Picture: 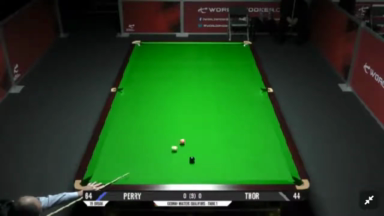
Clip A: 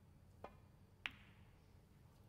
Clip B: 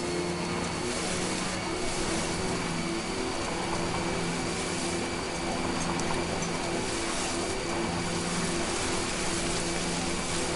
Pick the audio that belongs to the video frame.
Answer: A